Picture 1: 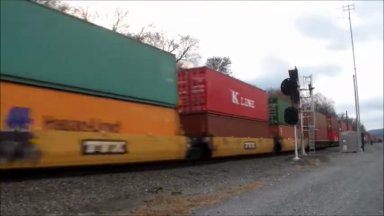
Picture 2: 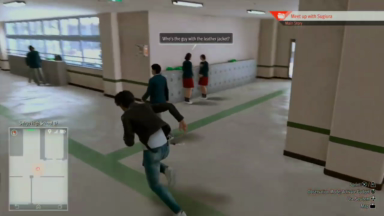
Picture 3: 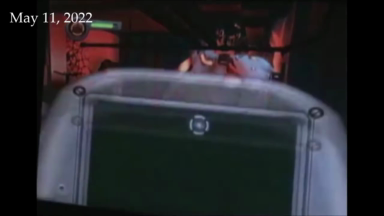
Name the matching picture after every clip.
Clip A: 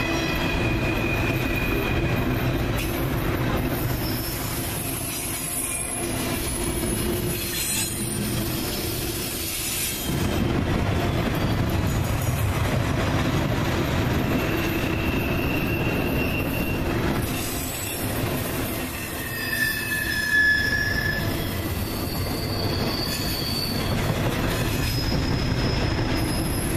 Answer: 1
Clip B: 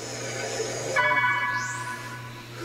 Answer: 3